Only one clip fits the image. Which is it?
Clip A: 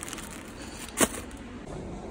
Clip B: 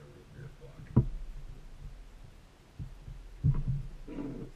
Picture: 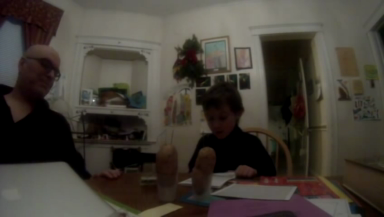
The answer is B